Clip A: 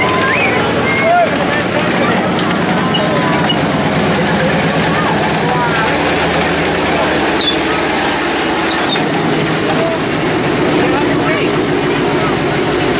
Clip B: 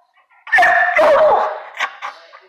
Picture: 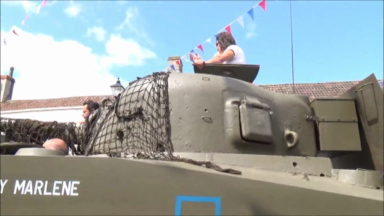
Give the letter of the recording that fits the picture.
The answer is A